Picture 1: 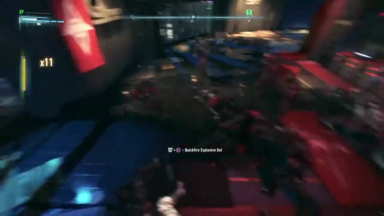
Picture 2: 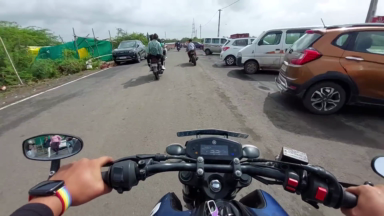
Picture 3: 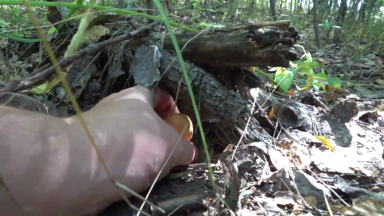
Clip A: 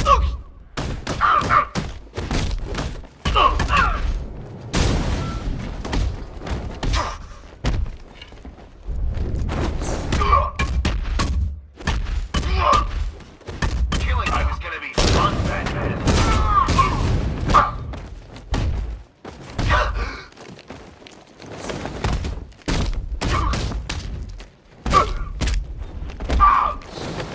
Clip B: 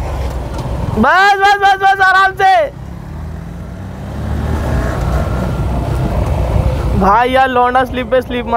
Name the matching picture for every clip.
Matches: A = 1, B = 2